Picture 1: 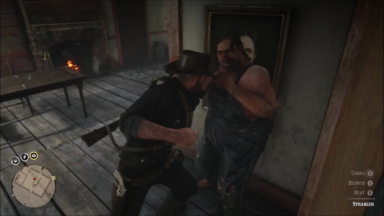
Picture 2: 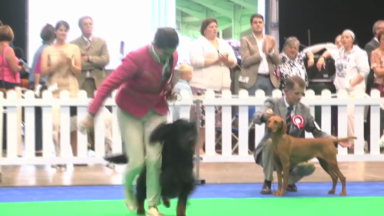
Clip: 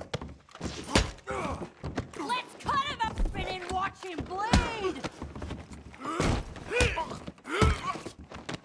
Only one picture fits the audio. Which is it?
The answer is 1